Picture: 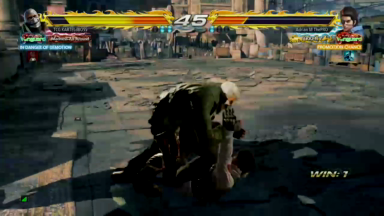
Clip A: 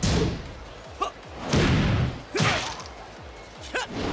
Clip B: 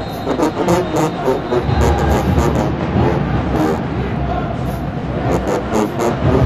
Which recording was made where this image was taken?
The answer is A